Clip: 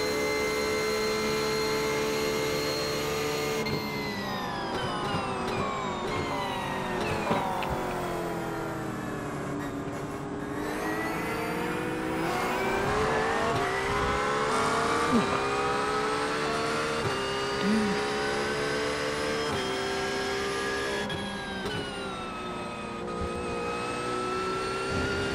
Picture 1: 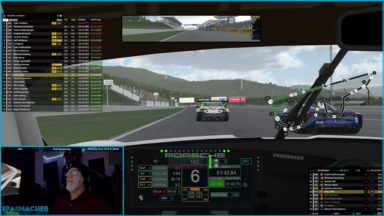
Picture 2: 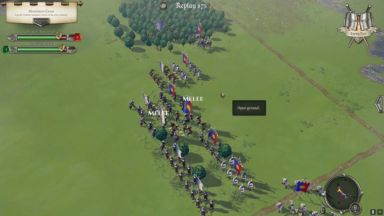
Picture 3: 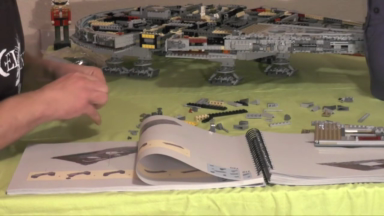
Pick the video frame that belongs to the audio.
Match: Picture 1